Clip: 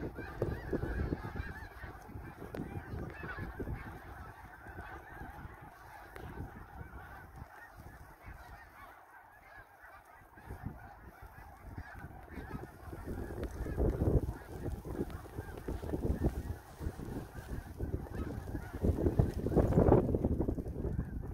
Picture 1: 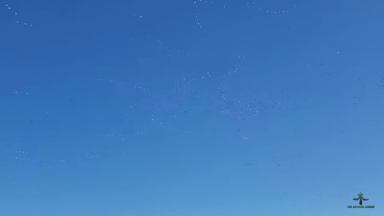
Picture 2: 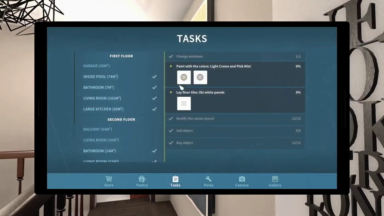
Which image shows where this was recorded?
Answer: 1